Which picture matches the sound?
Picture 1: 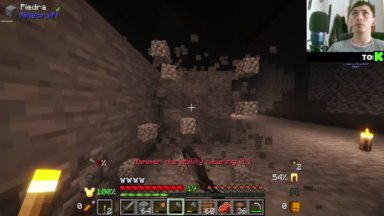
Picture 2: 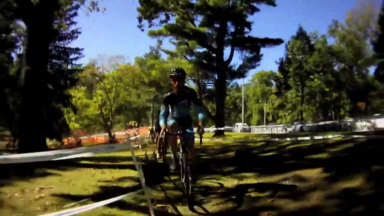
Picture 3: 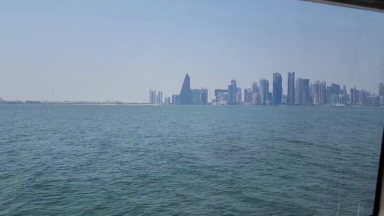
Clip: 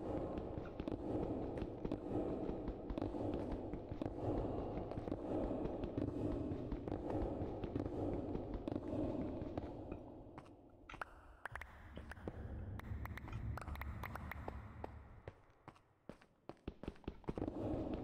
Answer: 1